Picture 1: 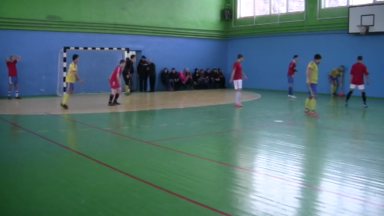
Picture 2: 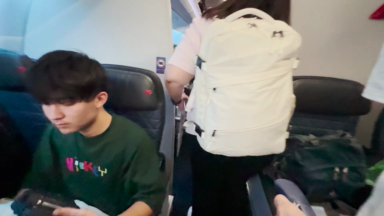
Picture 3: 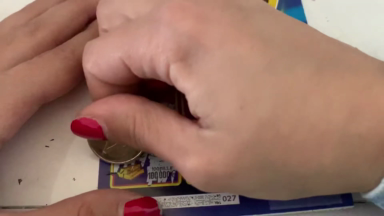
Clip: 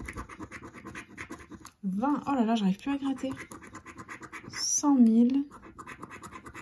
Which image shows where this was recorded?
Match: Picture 3